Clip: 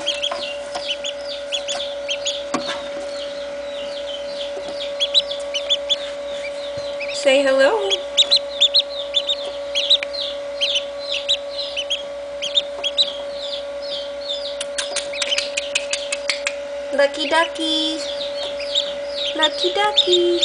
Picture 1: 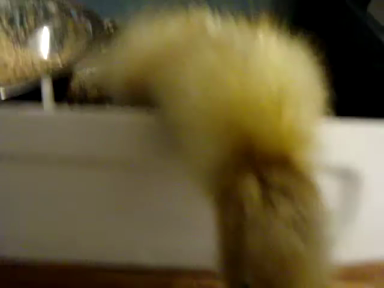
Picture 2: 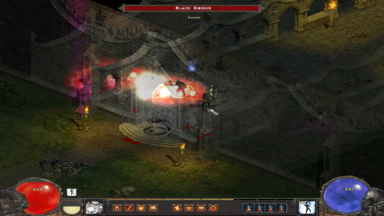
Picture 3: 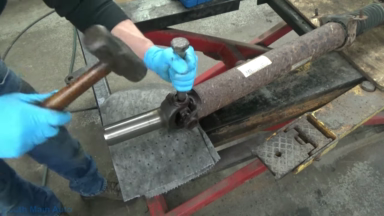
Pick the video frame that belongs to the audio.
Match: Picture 1